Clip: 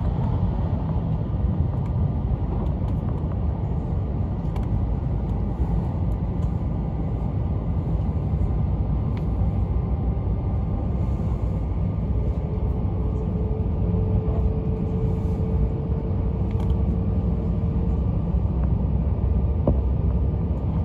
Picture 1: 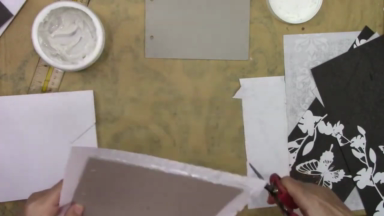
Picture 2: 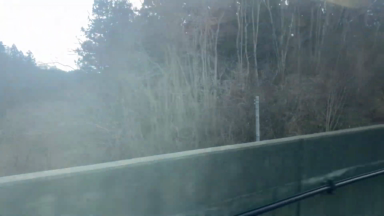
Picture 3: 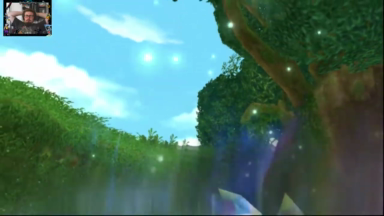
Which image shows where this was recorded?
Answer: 2